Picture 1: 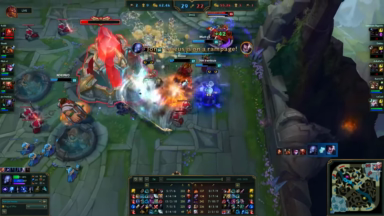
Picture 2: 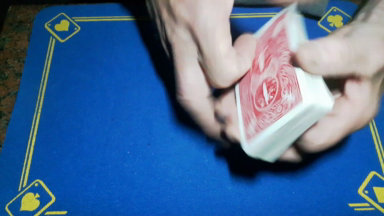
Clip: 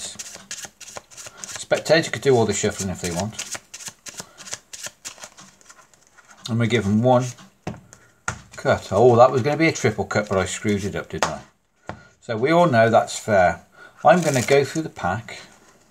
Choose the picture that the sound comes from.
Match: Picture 2